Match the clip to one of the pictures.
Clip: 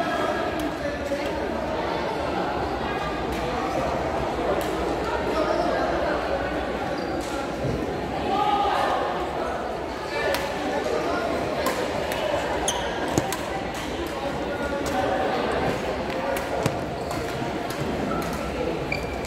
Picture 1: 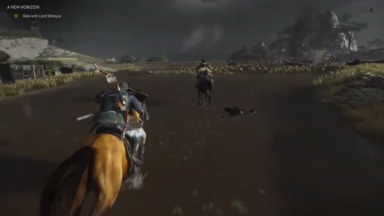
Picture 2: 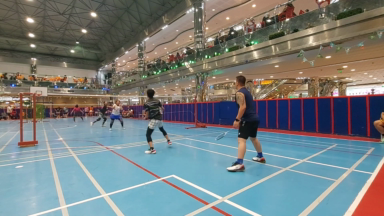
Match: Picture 2